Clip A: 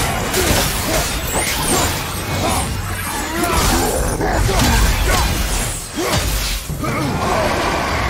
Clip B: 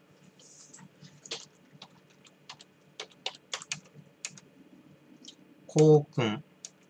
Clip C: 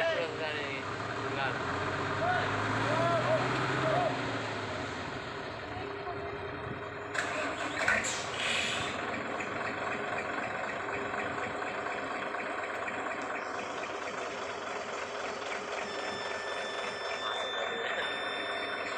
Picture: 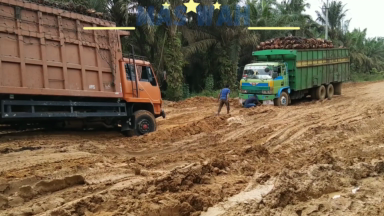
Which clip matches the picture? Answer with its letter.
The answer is C